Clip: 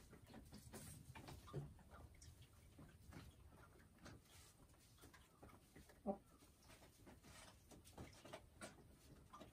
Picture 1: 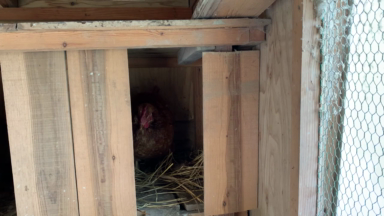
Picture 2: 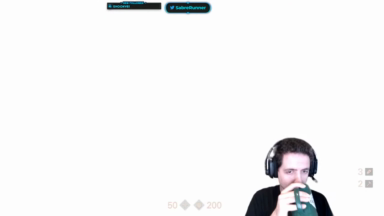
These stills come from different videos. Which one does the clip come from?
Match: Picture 1